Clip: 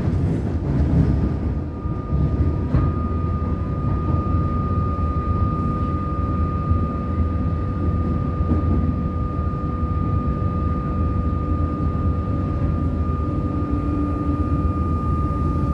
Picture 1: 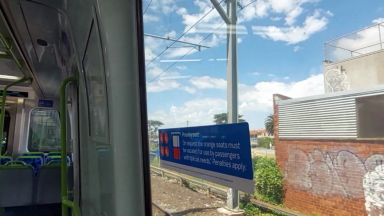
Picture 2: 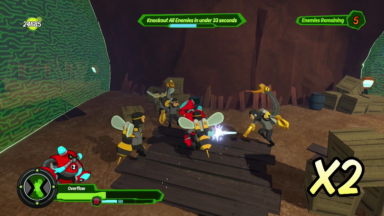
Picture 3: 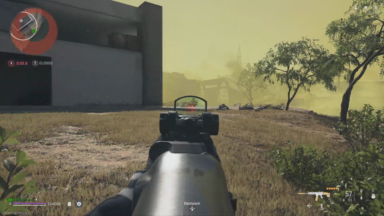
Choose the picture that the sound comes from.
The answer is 1